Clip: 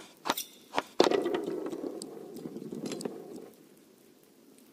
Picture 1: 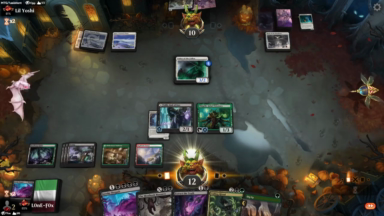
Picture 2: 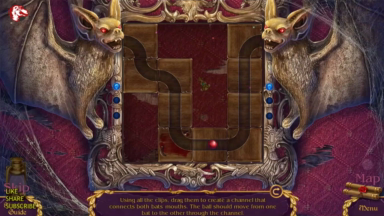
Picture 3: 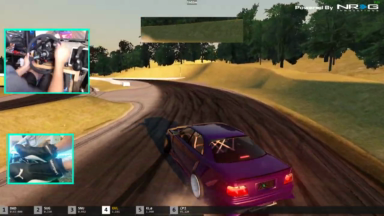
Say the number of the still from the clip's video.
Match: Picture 2